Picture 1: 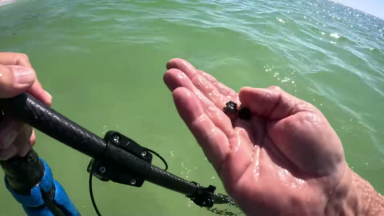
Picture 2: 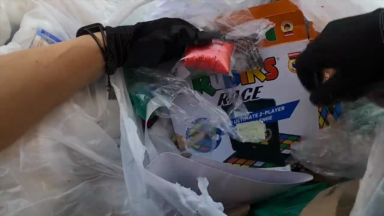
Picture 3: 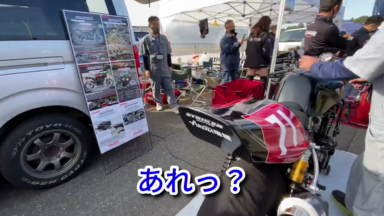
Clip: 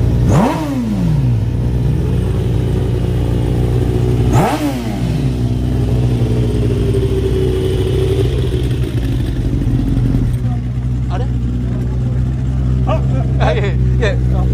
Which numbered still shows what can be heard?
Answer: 3